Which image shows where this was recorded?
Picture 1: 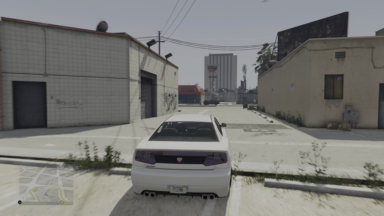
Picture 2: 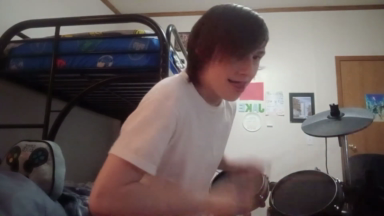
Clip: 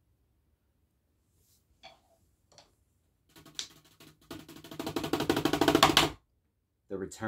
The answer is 2